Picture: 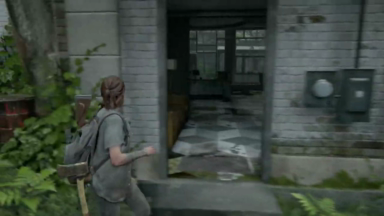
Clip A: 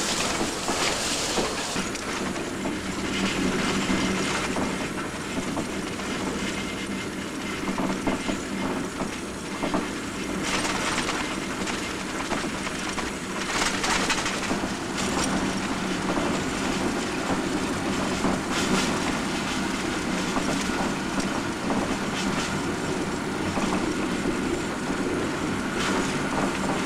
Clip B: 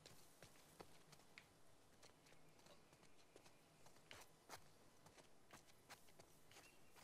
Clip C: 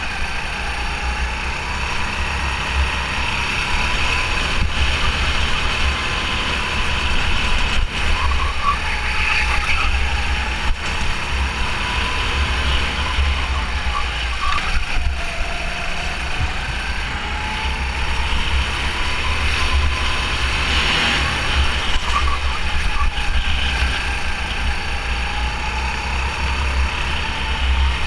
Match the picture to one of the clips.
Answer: B